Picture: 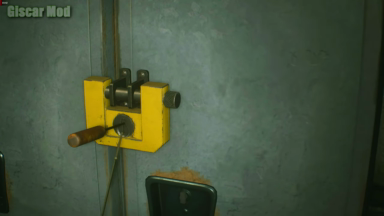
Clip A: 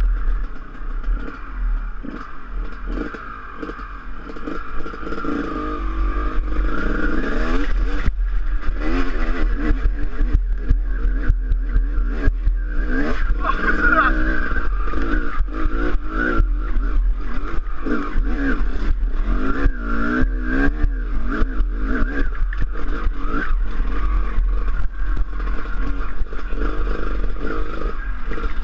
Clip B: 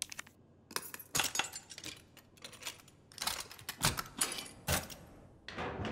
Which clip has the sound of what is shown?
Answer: B